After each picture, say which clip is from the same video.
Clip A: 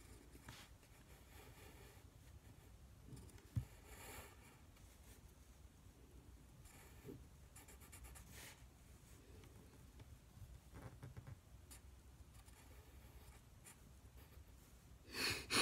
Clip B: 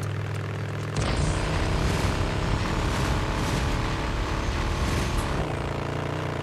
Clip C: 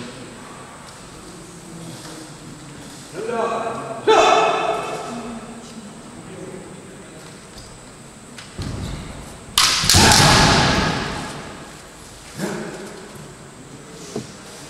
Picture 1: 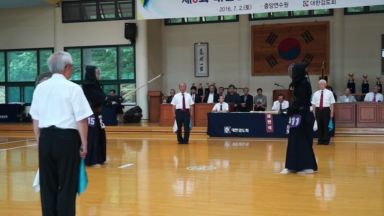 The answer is C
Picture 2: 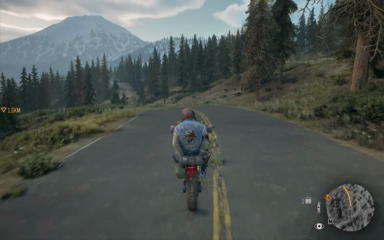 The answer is B